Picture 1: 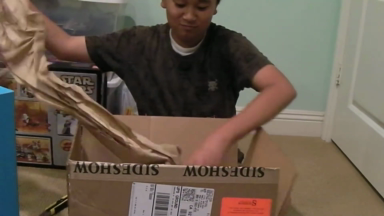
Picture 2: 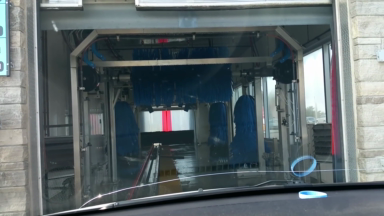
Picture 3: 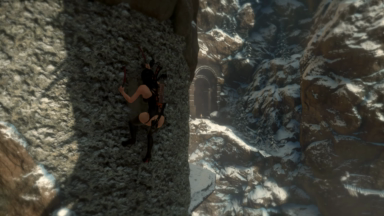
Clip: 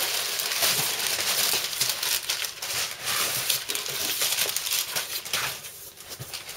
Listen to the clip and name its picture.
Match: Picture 1